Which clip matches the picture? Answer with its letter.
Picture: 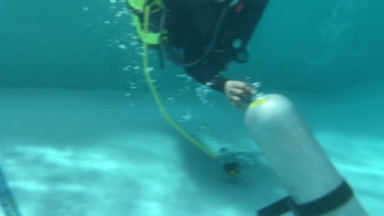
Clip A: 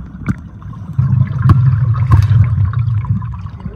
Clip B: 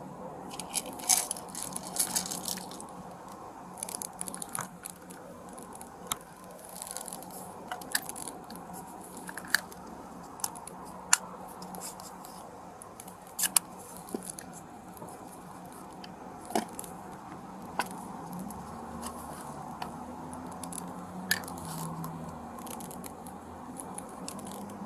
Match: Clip A